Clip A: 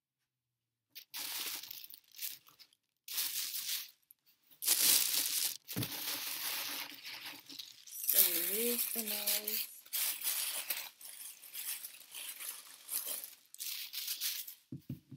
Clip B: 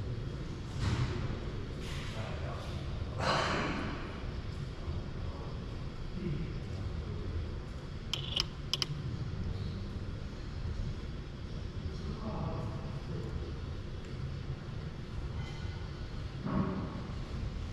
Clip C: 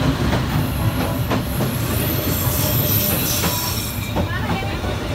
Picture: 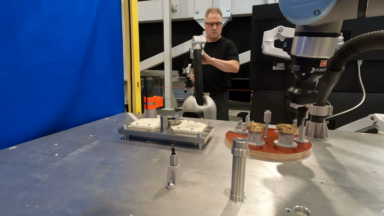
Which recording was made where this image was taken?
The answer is B